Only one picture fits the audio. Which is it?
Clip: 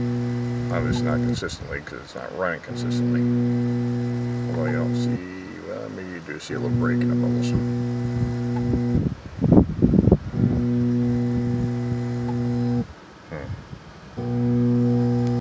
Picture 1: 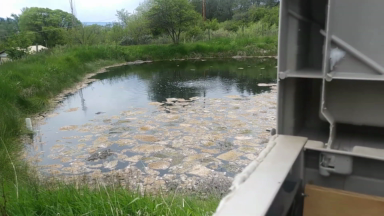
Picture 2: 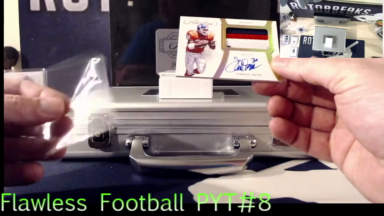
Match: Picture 1